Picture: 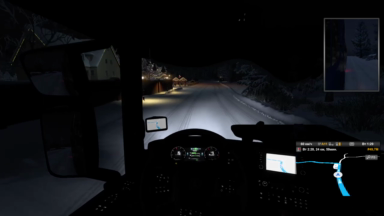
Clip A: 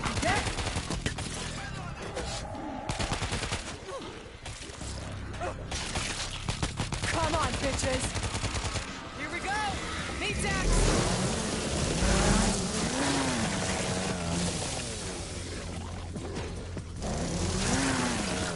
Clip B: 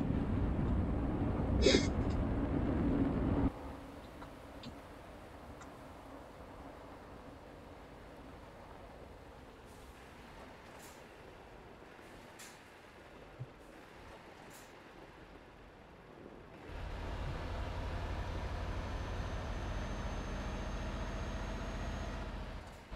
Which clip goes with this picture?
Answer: B